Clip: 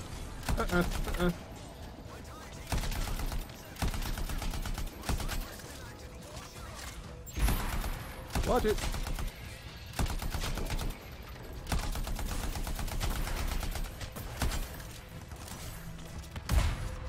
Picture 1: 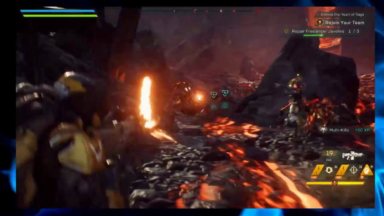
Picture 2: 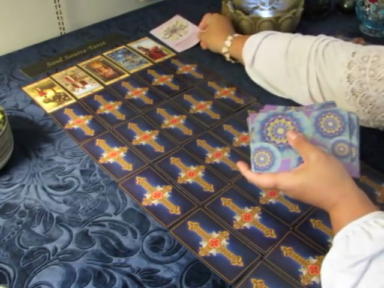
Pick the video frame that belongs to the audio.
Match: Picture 1